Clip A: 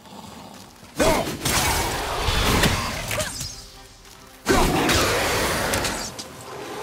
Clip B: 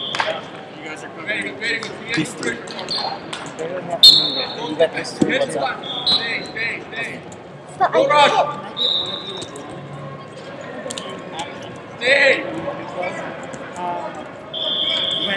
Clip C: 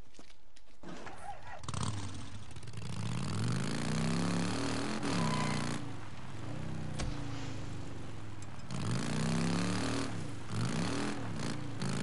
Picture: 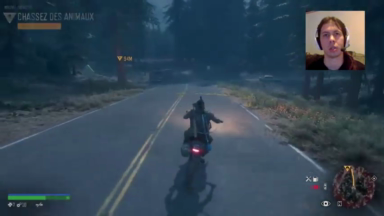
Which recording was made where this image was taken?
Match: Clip C